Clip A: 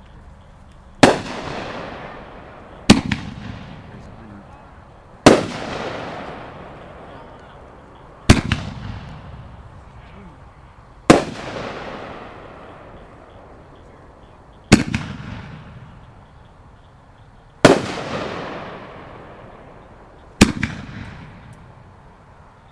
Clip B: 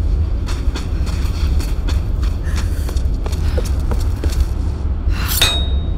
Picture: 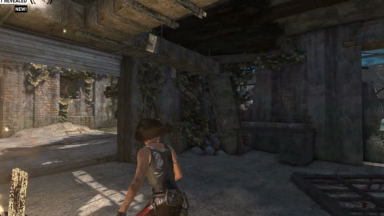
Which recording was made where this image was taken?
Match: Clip B